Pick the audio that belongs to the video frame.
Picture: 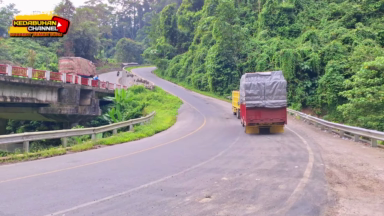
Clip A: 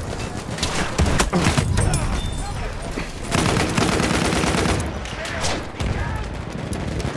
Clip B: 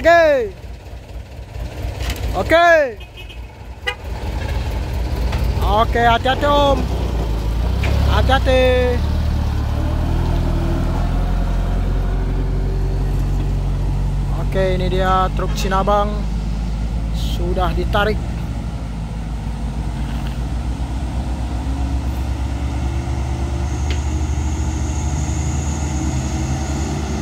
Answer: B